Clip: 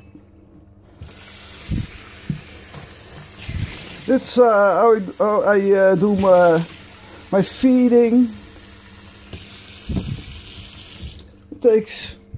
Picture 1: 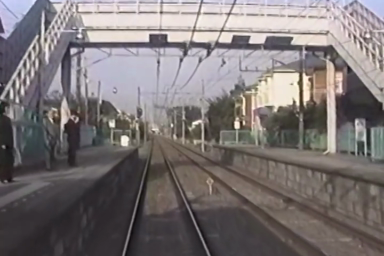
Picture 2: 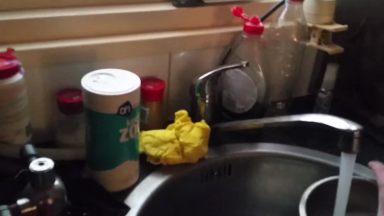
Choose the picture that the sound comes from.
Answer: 2